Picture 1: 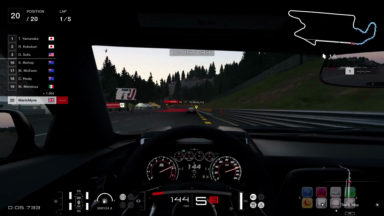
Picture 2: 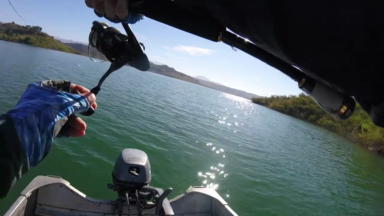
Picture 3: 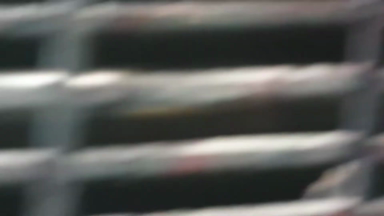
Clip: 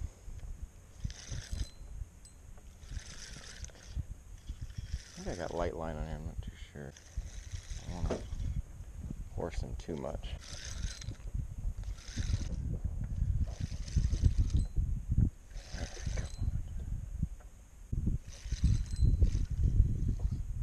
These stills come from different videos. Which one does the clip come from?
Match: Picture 2